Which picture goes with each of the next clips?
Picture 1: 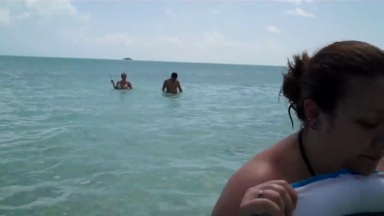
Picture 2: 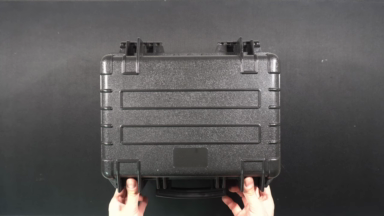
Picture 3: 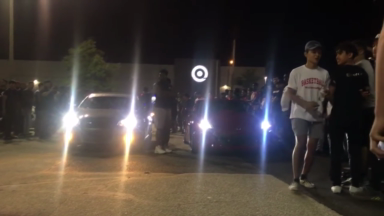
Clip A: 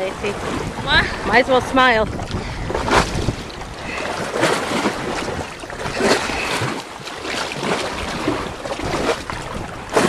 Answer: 1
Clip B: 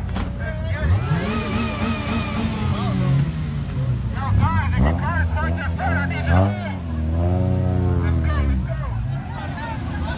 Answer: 3